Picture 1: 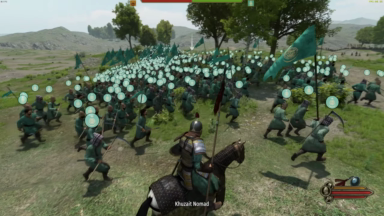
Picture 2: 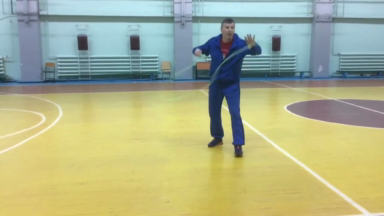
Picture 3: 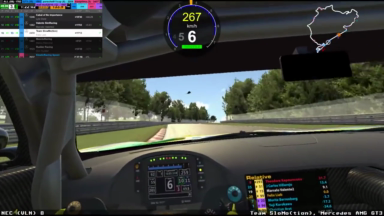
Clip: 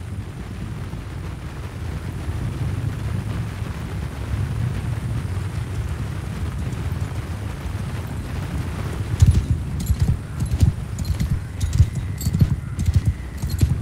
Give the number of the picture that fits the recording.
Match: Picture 1